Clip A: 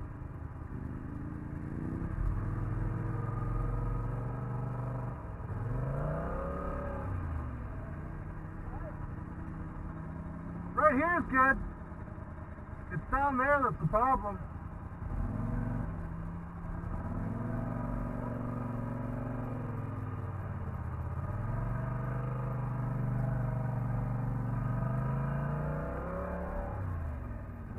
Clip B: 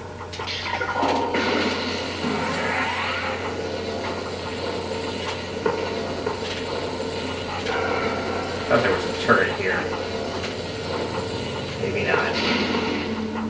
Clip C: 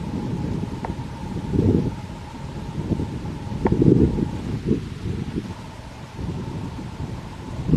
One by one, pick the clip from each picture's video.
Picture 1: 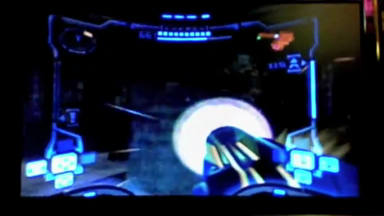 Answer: B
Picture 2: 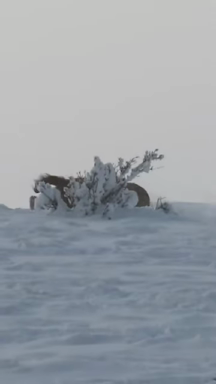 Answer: C